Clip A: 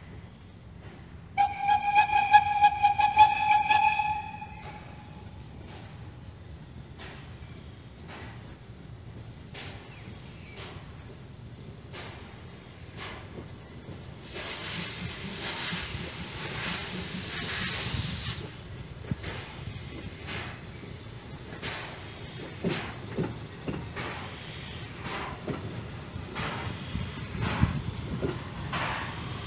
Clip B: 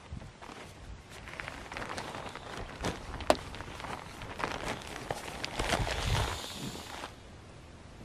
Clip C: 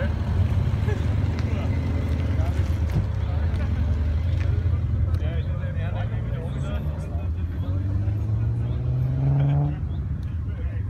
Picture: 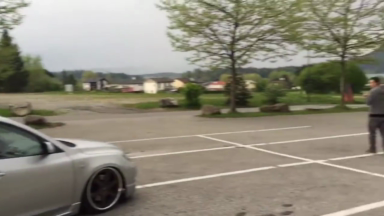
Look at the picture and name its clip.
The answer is C